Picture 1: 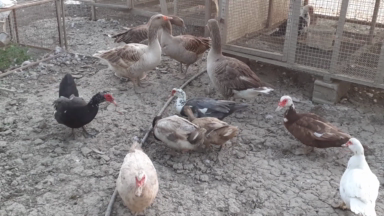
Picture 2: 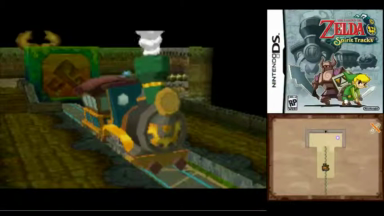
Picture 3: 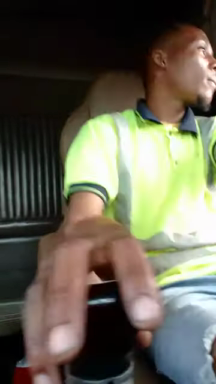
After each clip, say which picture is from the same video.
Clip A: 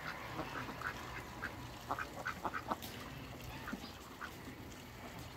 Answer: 1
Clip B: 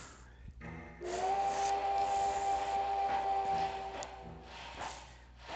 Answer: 2